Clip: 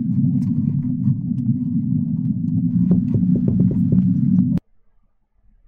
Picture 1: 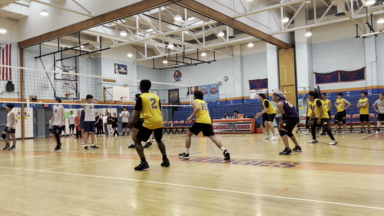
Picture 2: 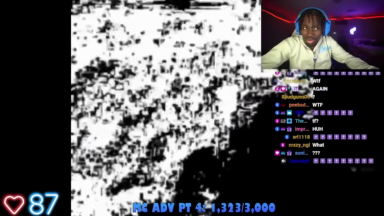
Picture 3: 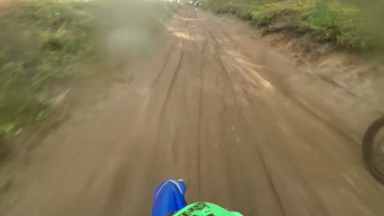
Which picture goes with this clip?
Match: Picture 2